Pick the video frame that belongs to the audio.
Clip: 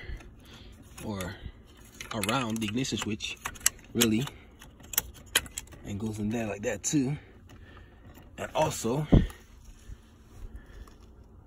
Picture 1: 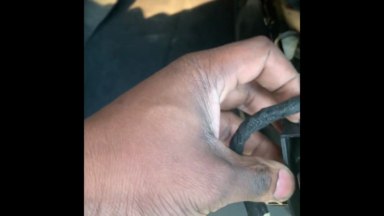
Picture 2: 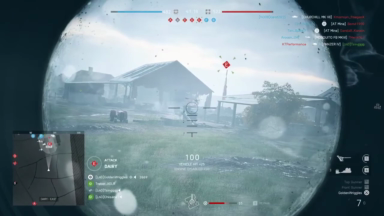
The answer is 1